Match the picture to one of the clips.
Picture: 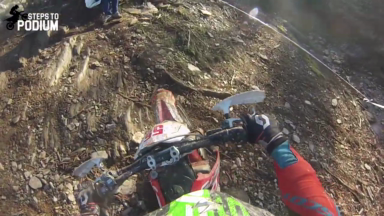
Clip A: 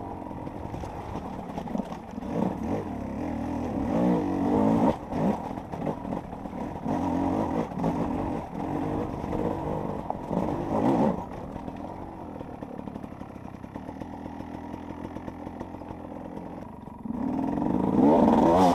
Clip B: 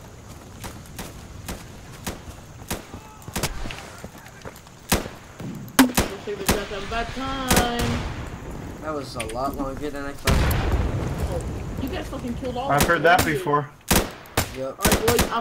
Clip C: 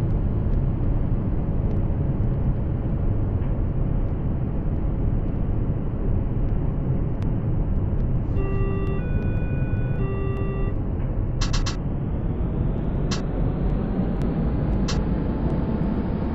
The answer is A